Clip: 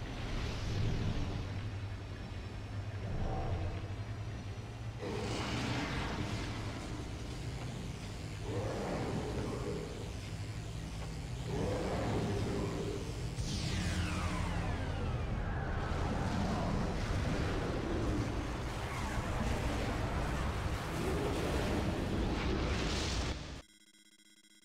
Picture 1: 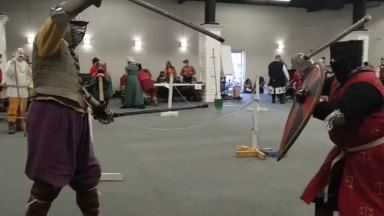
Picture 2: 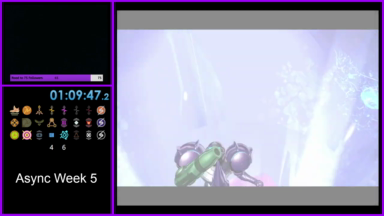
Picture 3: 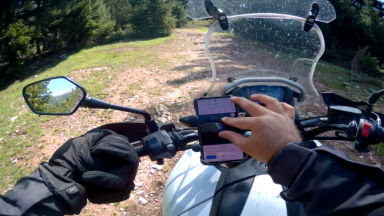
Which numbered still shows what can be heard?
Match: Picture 2